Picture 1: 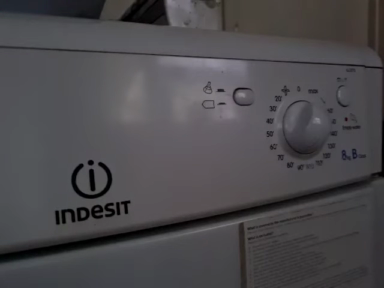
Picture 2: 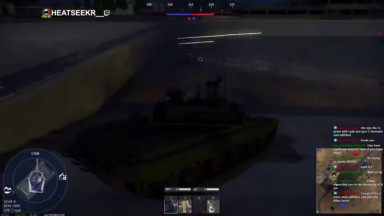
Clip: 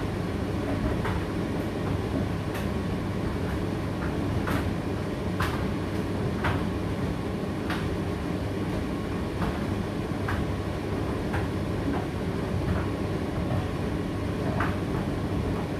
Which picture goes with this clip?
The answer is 1